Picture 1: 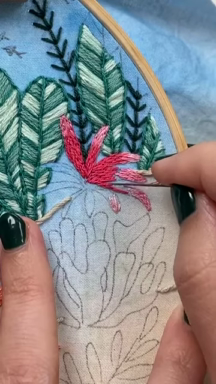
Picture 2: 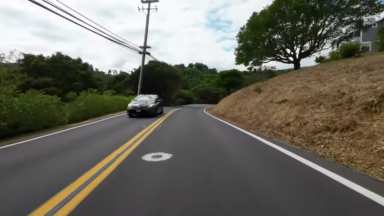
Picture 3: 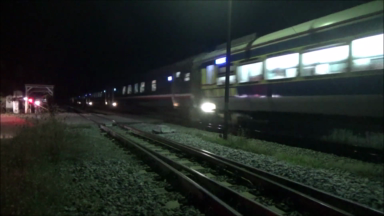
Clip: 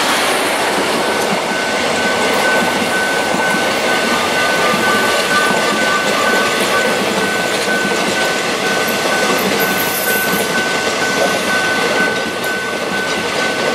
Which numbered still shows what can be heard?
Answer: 3